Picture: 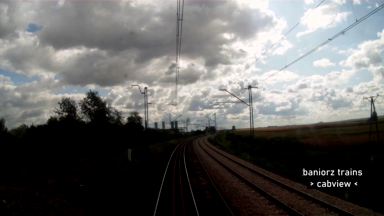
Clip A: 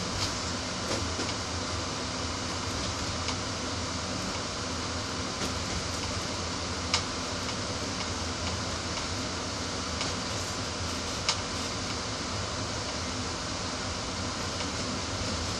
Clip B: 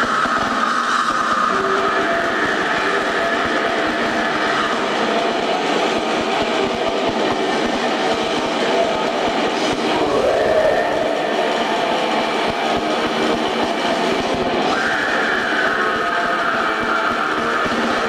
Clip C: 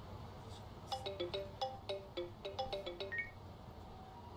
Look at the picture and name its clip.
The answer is A